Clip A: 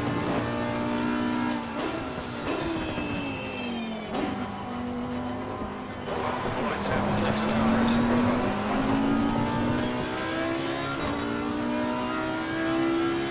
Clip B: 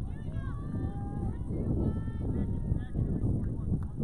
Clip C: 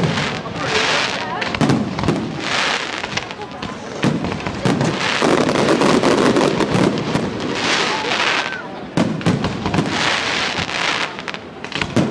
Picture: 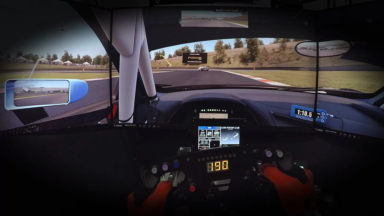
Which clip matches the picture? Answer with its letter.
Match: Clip A